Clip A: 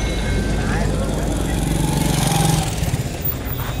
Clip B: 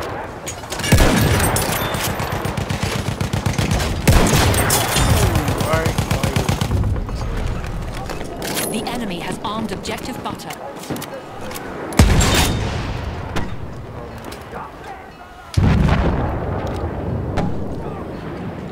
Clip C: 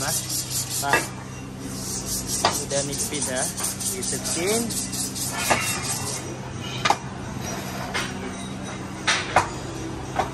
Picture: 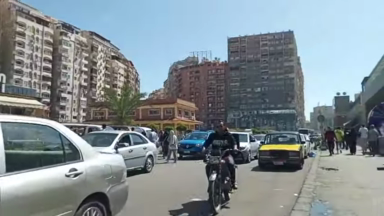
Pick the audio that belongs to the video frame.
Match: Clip A